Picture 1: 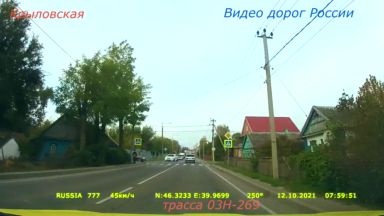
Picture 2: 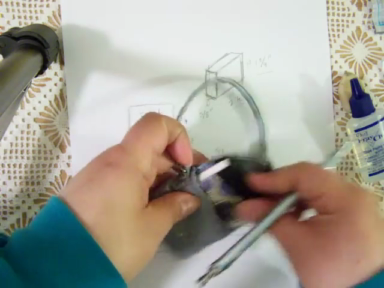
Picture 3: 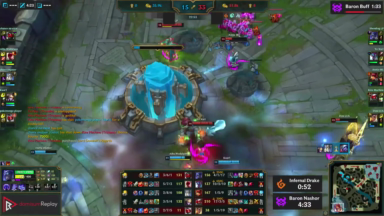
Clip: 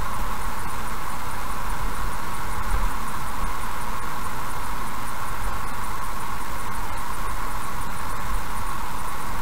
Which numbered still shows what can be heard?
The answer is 1